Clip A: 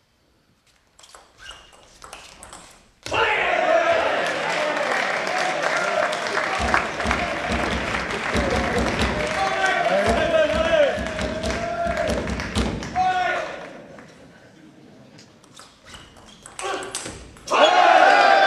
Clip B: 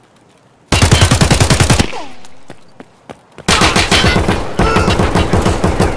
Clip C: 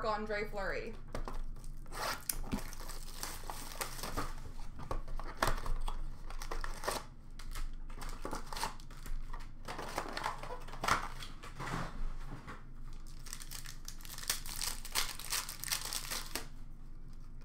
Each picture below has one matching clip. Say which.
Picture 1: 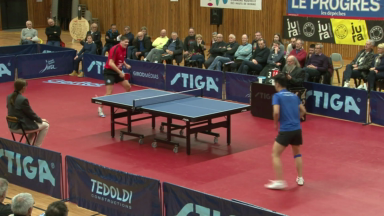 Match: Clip A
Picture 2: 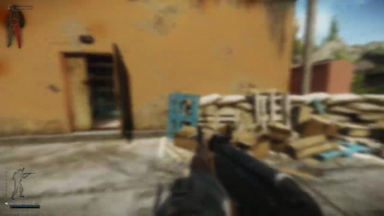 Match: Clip B